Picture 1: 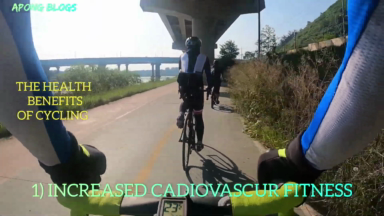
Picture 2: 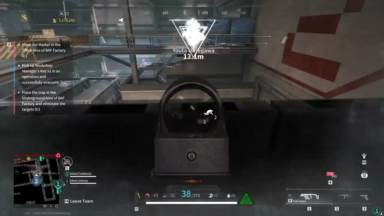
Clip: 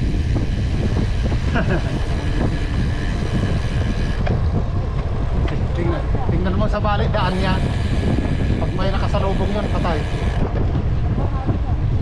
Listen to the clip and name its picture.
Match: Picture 1